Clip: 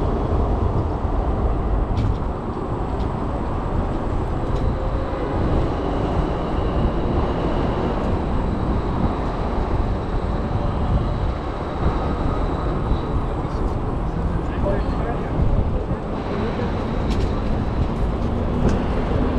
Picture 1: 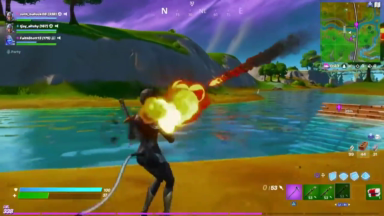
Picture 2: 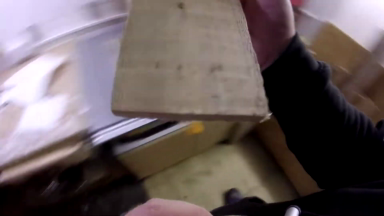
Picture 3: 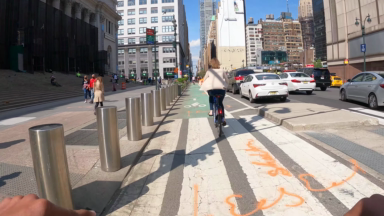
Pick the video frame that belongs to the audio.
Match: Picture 3